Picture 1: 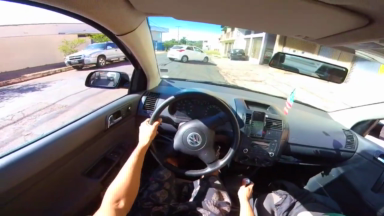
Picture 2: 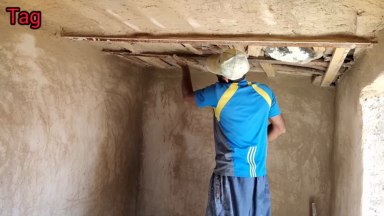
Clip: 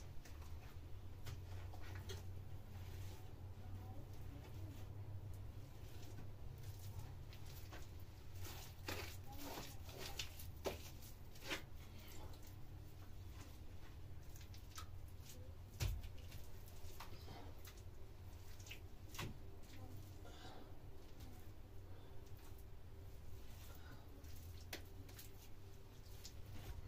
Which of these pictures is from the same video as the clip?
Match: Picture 2